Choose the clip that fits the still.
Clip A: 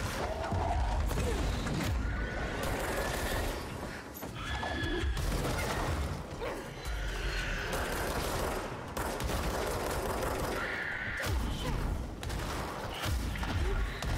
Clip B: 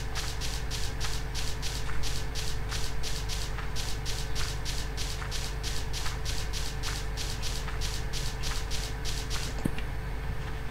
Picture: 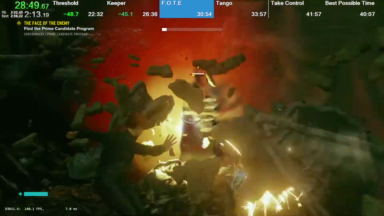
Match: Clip A